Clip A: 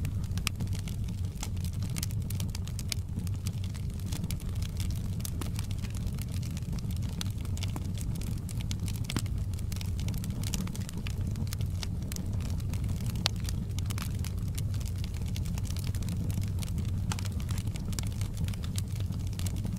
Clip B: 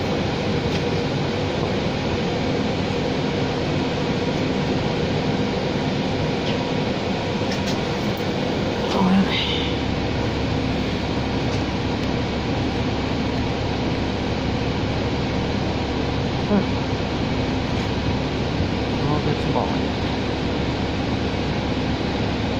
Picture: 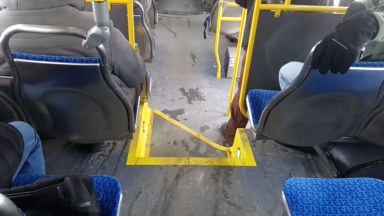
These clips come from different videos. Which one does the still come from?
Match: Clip B